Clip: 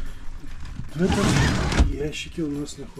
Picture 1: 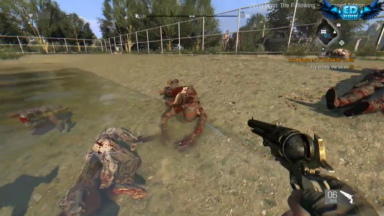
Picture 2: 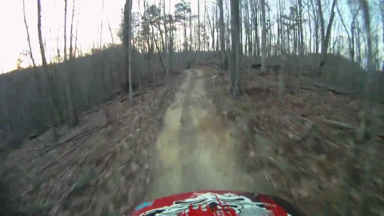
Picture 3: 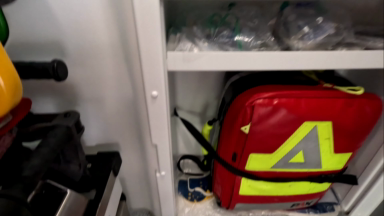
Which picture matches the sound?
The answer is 3